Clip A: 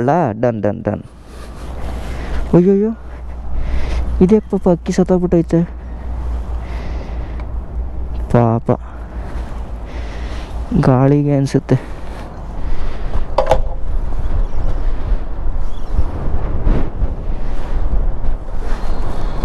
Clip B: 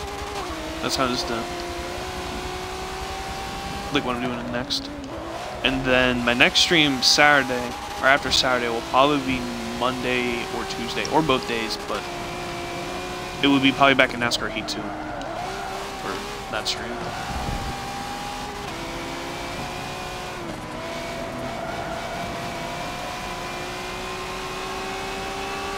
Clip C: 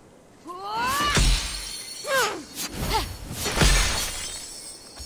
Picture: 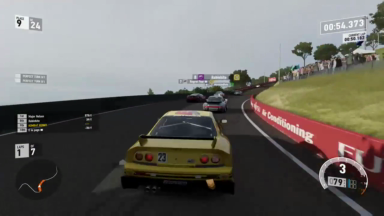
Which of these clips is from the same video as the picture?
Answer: B